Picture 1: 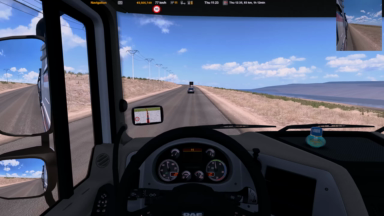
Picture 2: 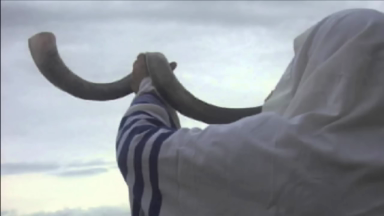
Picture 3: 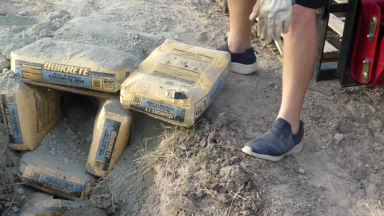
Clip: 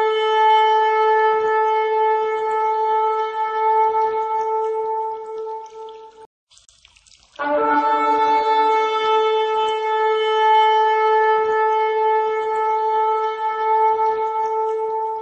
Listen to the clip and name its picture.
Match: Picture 2